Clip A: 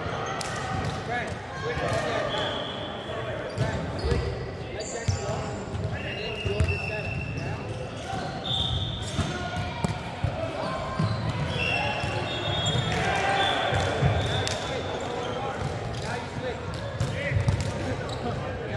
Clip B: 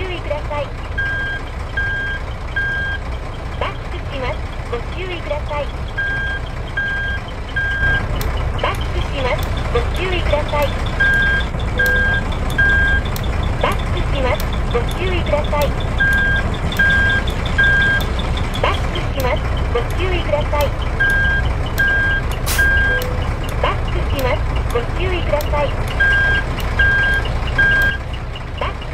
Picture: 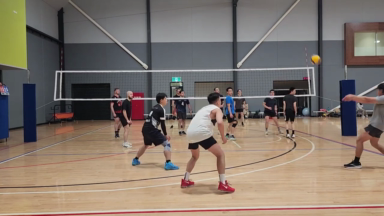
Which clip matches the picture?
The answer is A